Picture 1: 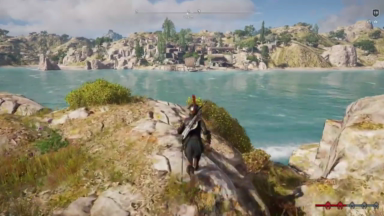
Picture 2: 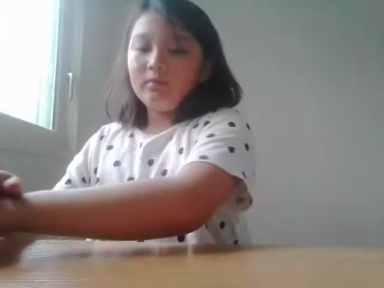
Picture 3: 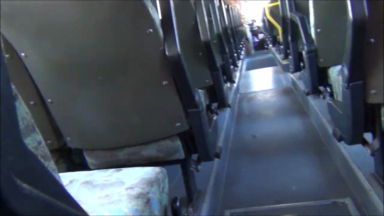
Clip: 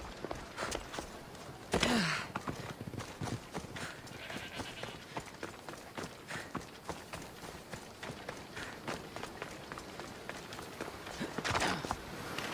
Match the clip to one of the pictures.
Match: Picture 1